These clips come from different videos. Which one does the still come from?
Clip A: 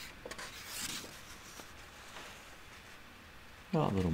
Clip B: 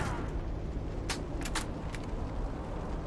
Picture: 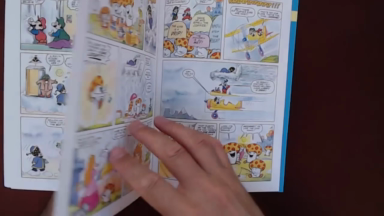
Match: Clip A